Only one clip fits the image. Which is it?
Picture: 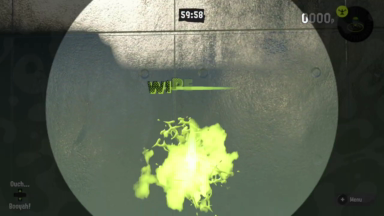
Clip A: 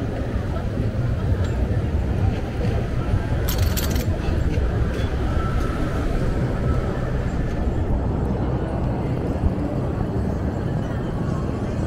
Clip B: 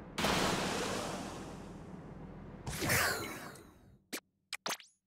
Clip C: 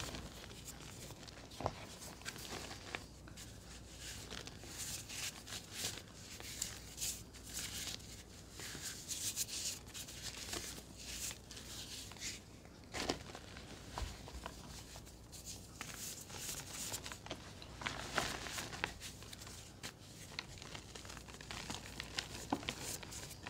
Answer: B